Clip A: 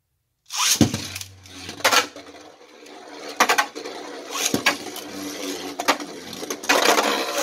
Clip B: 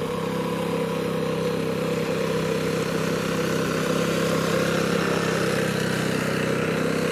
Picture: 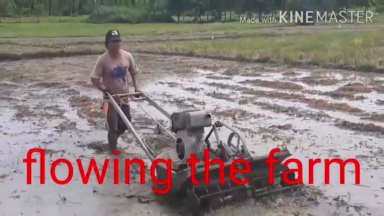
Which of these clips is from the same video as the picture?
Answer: B